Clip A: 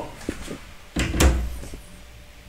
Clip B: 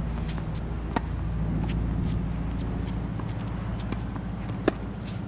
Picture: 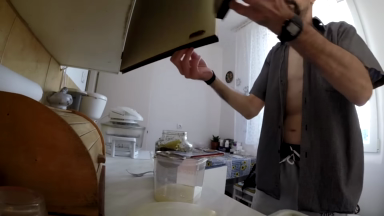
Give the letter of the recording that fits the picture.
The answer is A